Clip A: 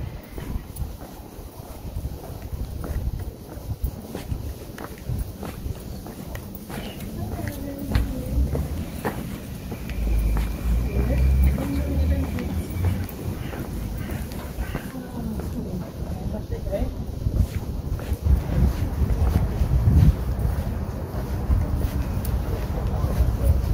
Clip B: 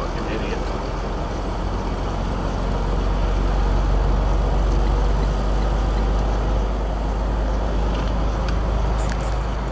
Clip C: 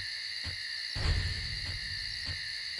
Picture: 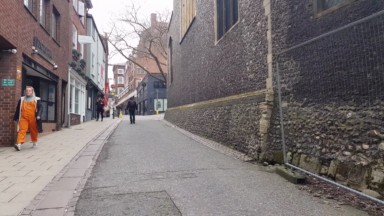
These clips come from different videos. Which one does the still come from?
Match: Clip A